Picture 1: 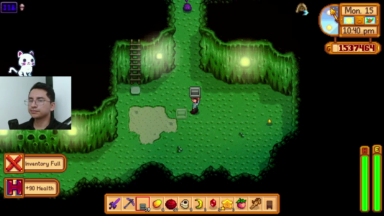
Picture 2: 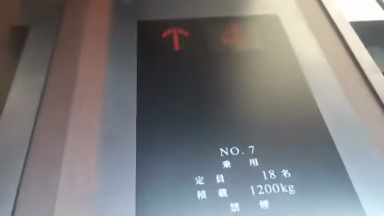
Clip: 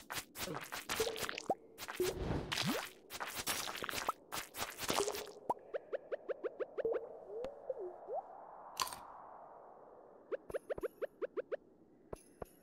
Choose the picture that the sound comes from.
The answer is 1